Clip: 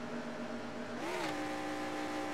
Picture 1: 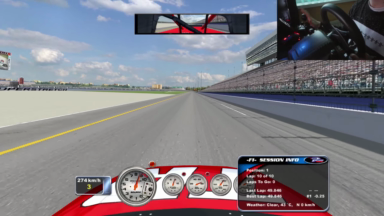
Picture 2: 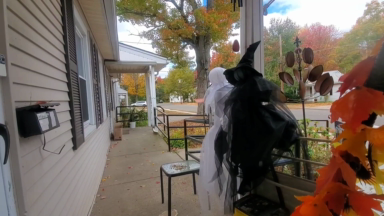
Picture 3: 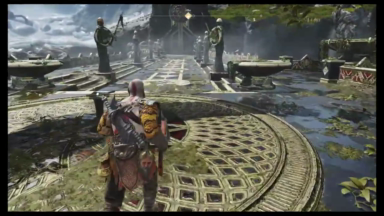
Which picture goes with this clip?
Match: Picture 1